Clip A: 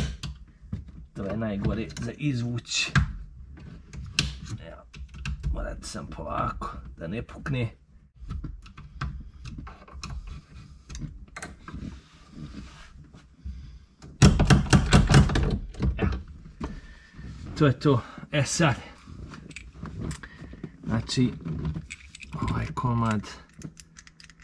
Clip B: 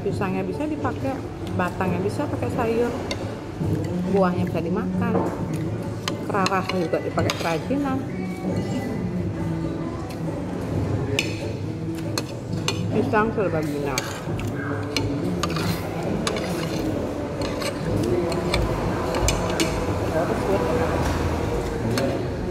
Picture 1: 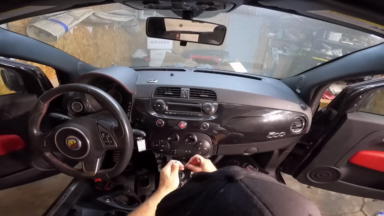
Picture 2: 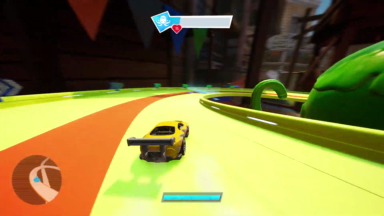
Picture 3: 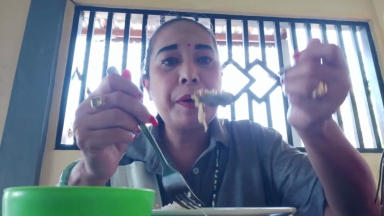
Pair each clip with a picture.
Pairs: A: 1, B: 3